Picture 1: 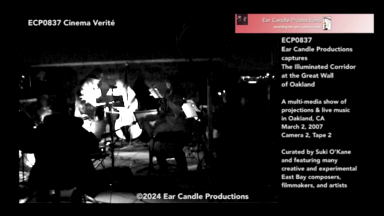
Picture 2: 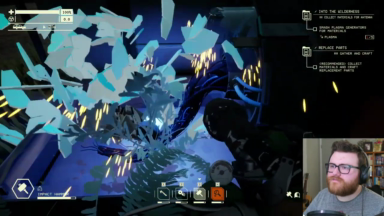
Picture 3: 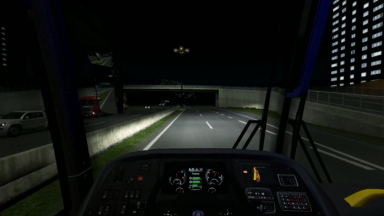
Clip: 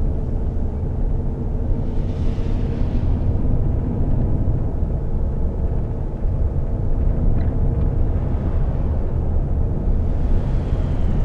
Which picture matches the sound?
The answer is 3